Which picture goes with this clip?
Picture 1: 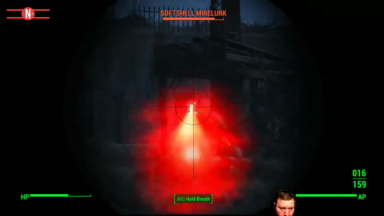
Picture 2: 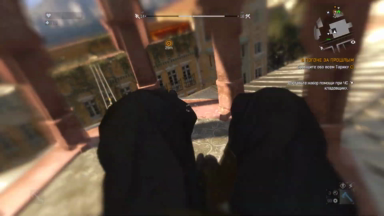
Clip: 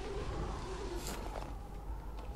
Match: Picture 2